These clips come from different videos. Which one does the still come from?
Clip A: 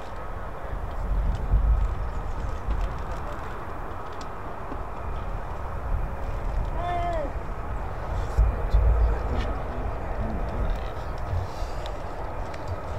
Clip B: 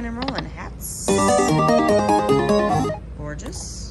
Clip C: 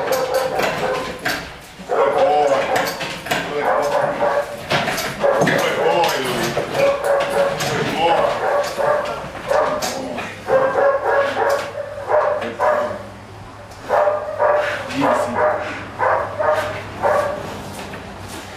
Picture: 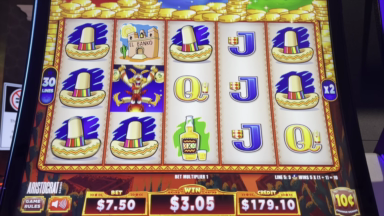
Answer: B